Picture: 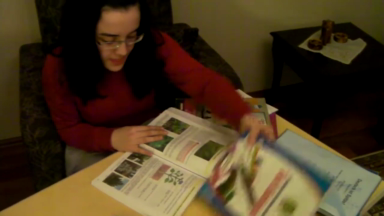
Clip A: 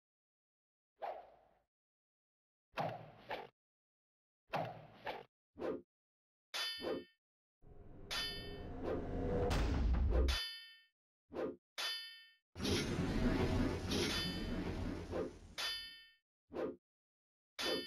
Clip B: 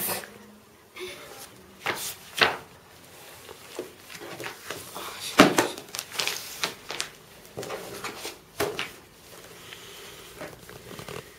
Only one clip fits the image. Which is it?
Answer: B